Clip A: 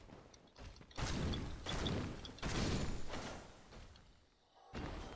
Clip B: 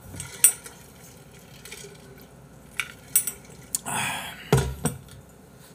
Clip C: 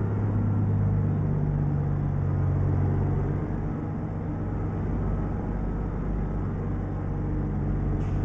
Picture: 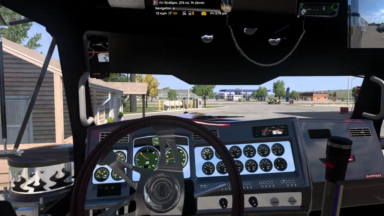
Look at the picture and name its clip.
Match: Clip C